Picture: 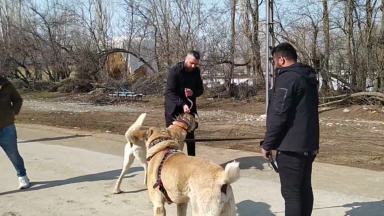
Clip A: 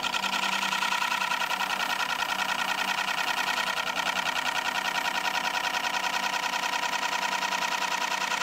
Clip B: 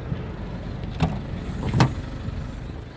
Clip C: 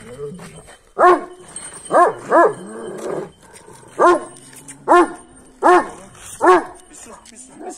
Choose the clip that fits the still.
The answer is C